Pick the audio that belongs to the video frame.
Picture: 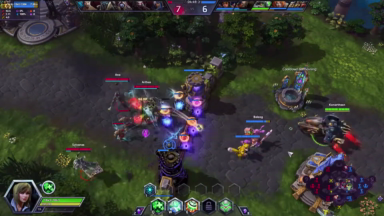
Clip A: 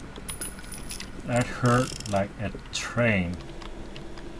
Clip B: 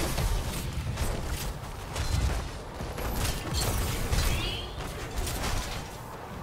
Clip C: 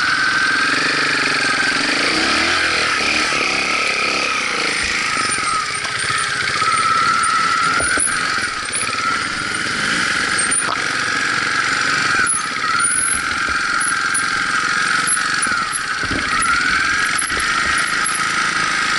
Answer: B